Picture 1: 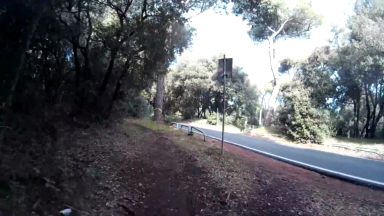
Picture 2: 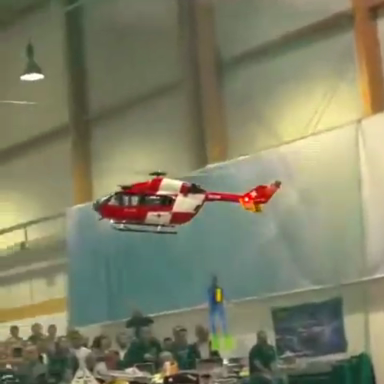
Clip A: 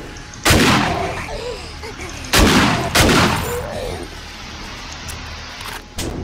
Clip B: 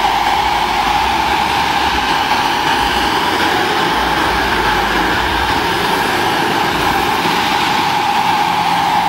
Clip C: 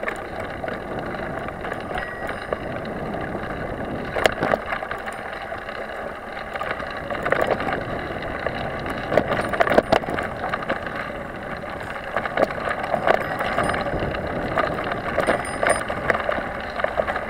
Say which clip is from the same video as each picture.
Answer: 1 C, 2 B